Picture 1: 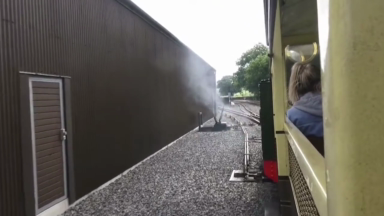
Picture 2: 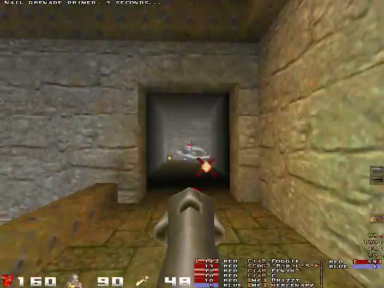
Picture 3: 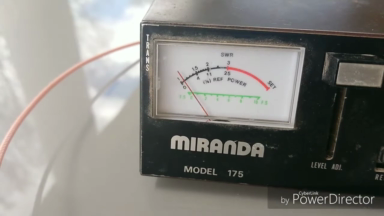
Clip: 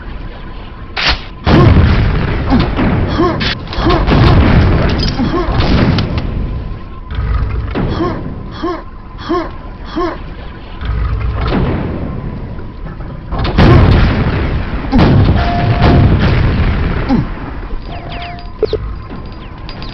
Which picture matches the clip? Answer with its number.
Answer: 2